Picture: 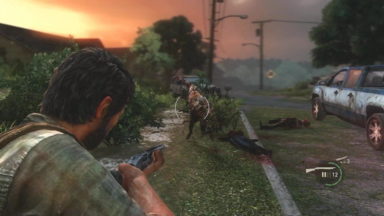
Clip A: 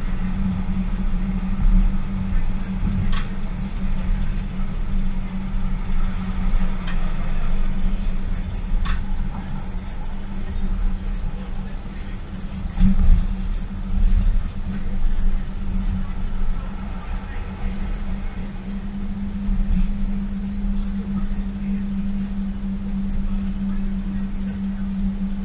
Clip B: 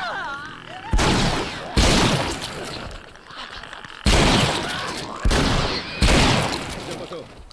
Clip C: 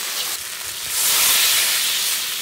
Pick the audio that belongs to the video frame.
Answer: B